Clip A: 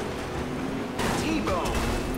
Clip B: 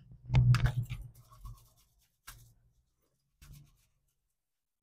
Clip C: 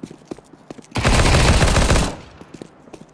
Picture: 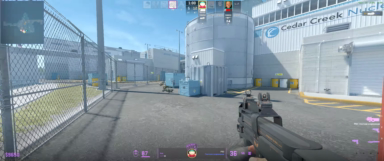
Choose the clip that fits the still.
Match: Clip C